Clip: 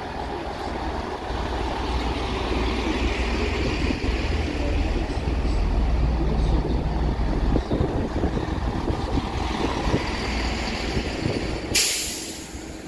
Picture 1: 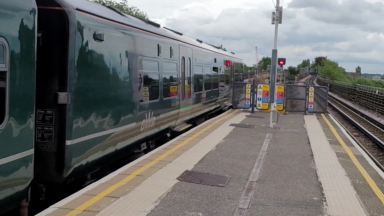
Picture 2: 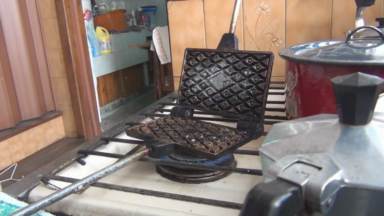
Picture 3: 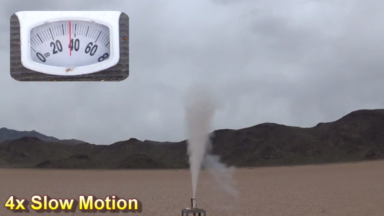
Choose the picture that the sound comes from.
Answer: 1